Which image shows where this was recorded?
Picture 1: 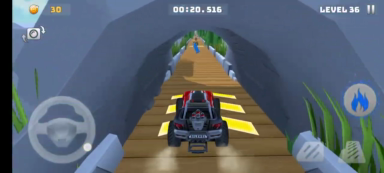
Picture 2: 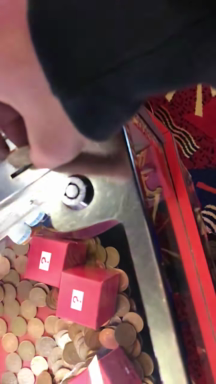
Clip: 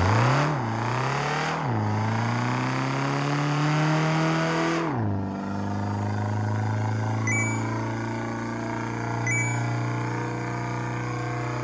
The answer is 1